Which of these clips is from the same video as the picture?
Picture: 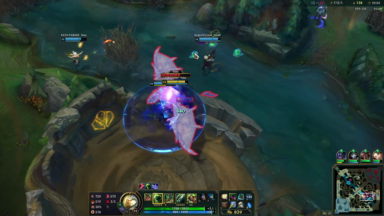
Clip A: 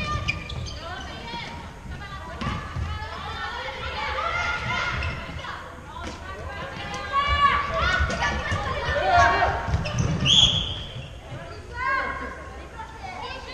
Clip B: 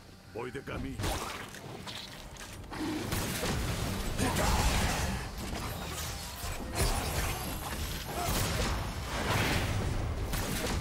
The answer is B